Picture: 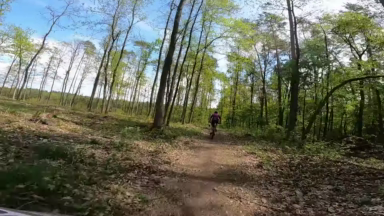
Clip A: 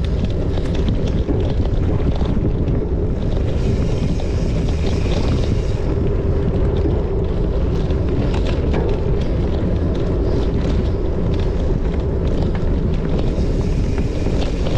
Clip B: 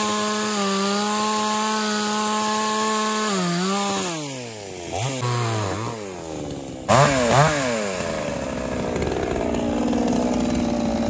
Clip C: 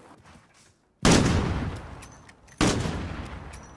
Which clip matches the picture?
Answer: A